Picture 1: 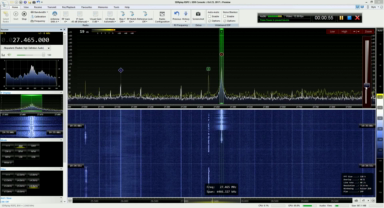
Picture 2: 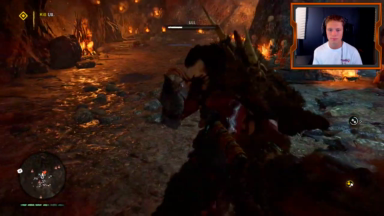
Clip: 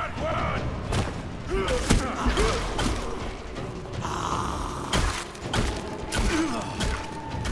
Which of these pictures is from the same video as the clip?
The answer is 2